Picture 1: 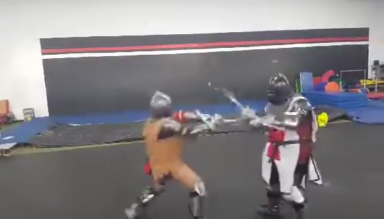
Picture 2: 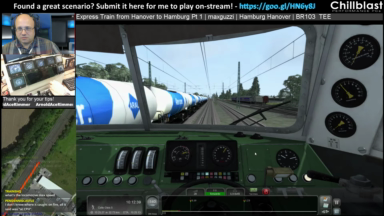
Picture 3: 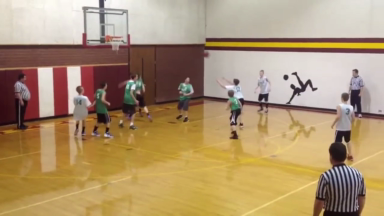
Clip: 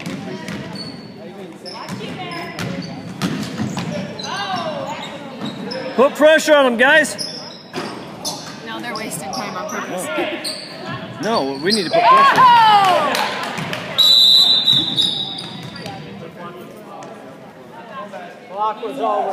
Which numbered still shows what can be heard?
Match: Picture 3